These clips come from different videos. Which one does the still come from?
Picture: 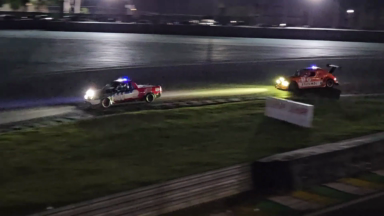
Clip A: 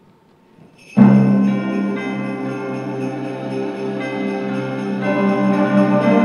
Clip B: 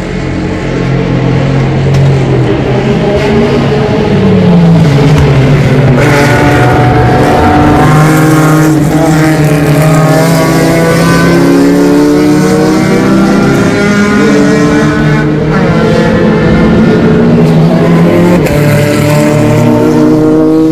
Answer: B